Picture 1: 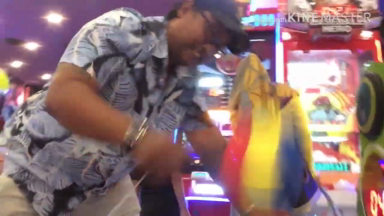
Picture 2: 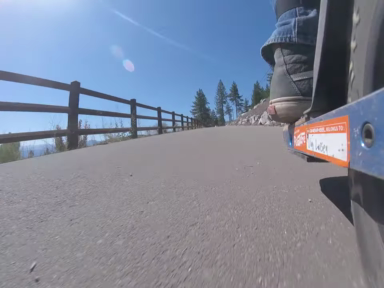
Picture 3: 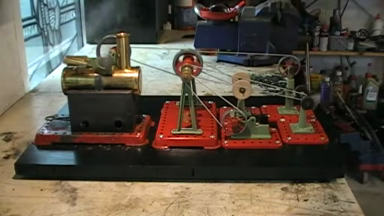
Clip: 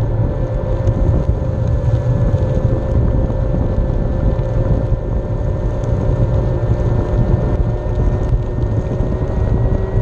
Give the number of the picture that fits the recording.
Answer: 2